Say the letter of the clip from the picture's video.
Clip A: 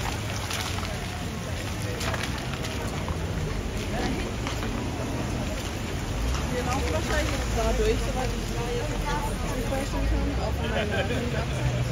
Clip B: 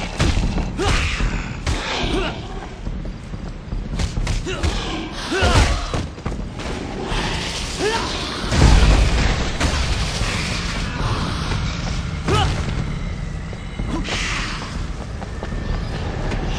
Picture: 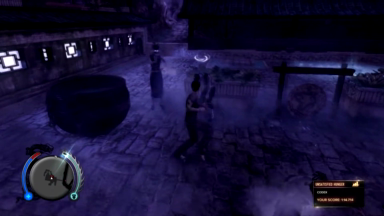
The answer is B